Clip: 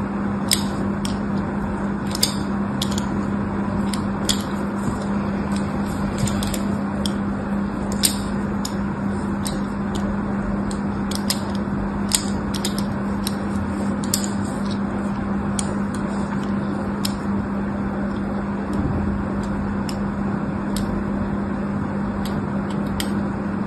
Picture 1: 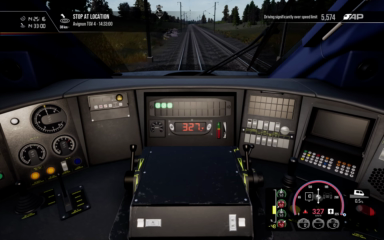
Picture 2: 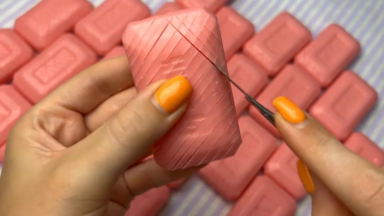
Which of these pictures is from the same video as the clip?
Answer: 2